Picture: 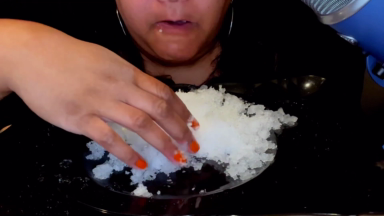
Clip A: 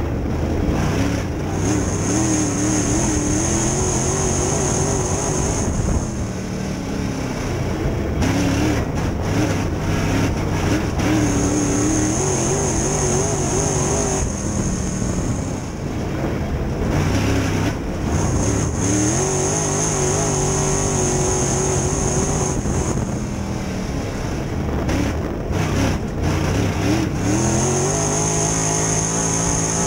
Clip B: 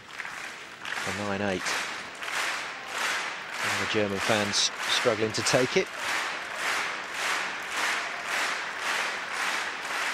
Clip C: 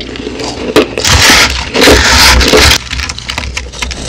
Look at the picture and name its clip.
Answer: C